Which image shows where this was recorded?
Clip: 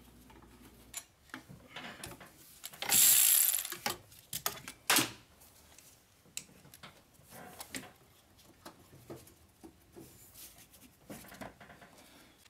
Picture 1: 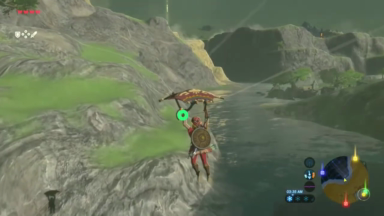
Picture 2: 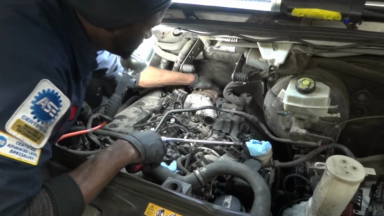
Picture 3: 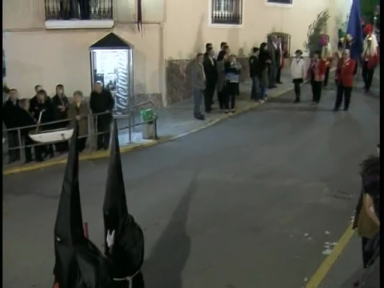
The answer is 2